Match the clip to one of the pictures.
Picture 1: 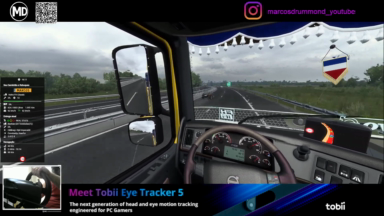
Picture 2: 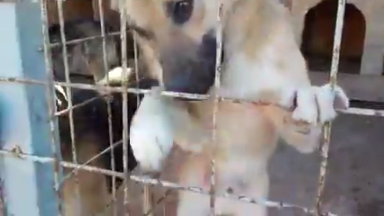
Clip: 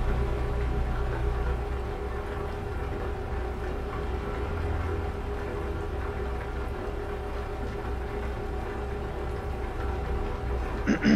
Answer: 1